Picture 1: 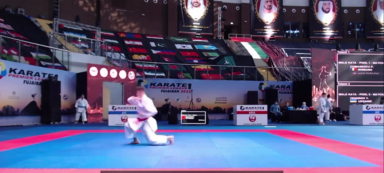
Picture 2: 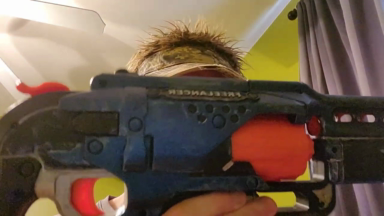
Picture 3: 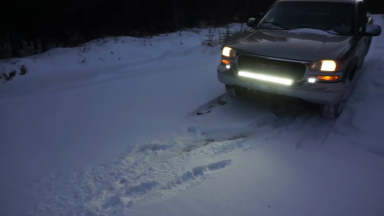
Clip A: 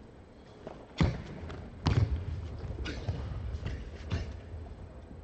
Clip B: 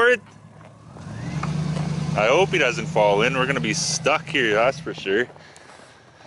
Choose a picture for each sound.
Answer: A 1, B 3